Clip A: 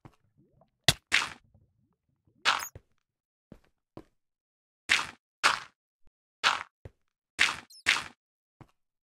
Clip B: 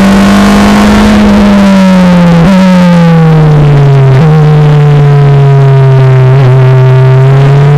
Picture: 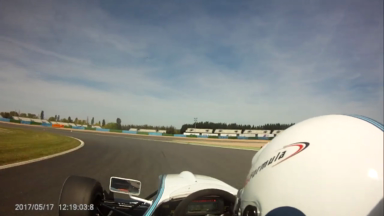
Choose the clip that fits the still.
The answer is B